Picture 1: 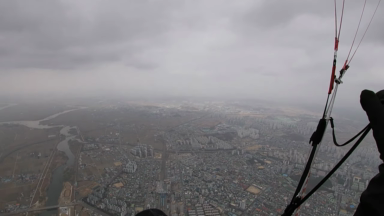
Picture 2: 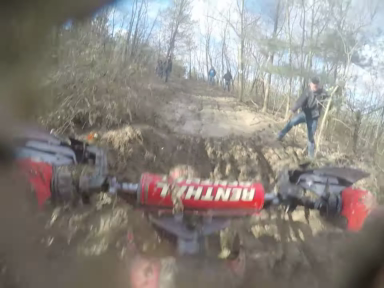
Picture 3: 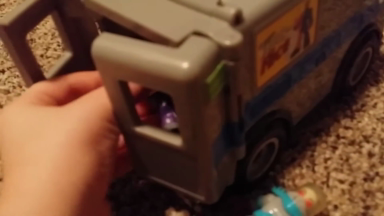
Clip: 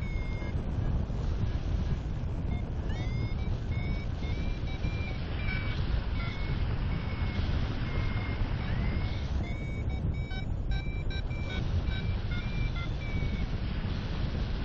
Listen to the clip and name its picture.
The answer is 1